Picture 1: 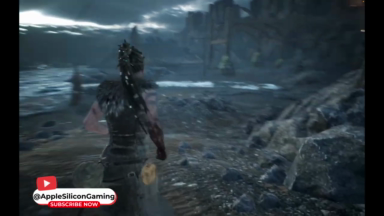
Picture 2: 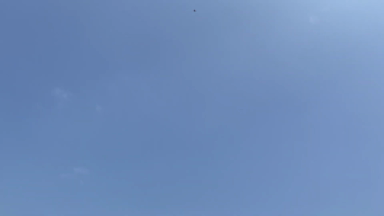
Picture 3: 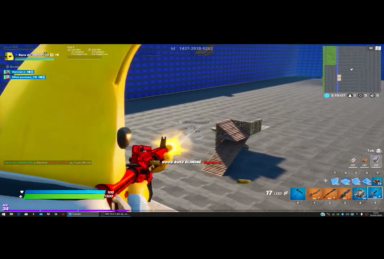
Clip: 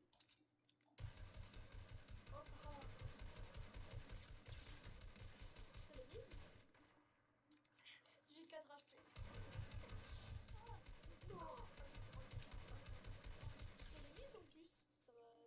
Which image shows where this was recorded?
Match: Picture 3